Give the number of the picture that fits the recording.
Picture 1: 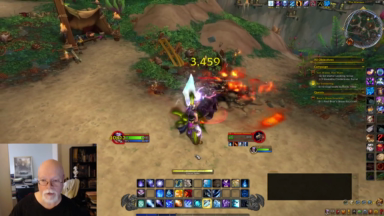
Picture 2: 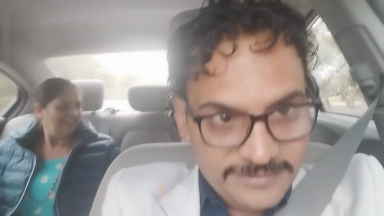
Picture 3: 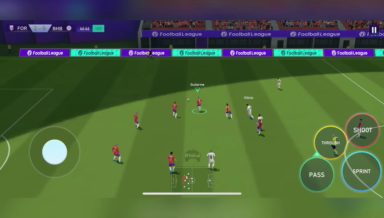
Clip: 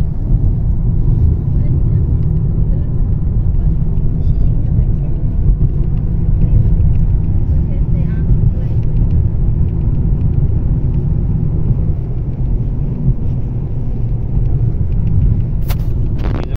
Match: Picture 2